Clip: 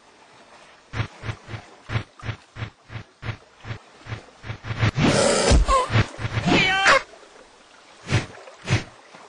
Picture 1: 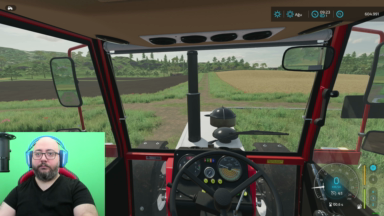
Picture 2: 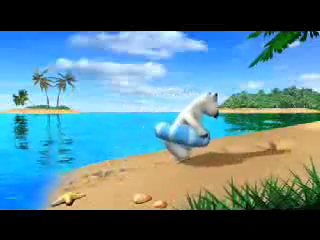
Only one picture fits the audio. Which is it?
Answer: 2